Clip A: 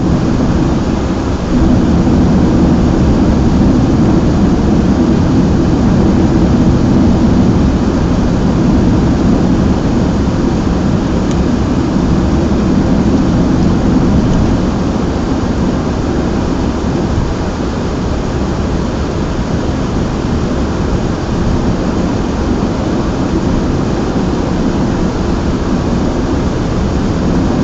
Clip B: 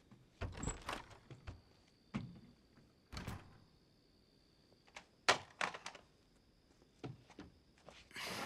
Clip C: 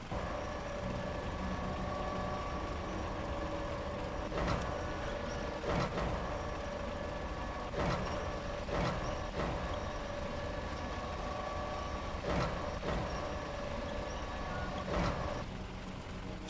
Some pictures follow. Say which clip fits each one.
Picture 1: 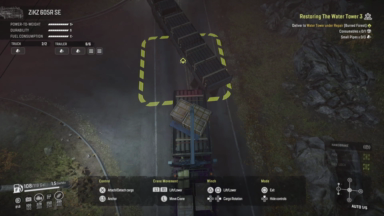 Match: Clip C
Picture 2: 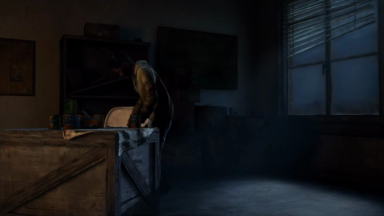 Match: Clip B